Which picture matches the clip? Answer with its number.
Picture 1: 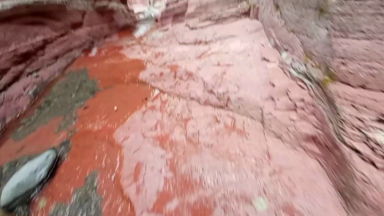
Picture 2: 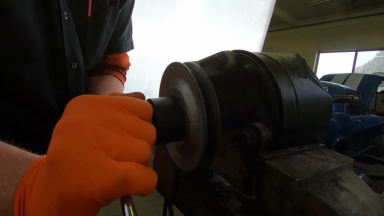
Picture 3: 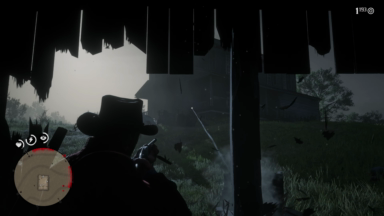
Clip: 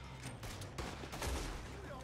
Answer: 3